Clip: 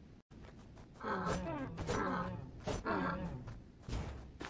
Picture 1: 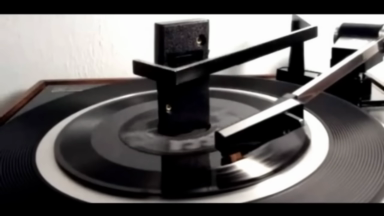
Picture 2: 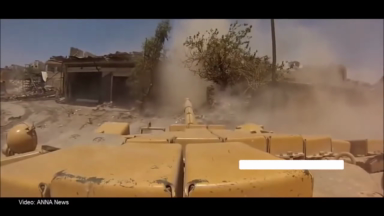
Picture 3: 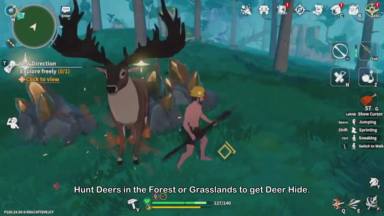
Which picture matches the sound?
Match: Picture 3